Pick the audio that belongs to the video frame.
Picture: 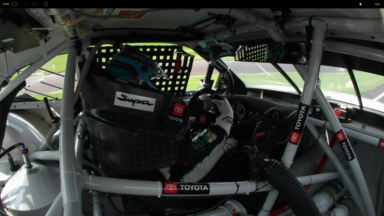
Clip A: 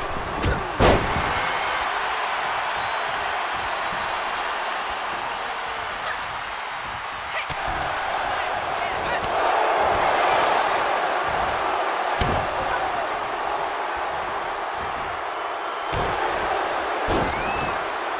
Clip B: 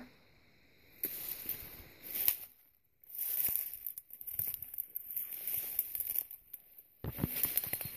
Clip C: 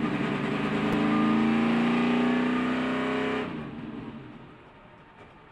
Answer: C